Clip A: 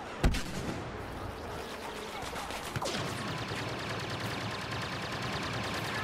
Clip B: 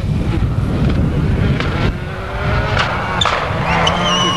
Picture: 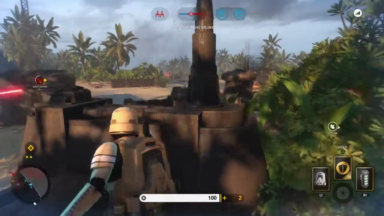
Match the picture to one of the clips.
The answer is A